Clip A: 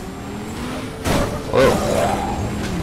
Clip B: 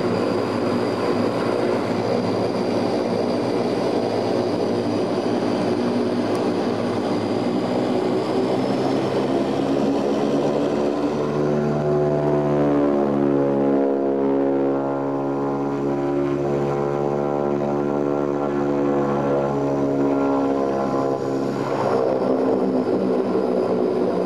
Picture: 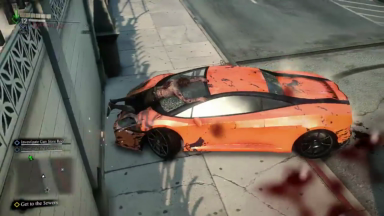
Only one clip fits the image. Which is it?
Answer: A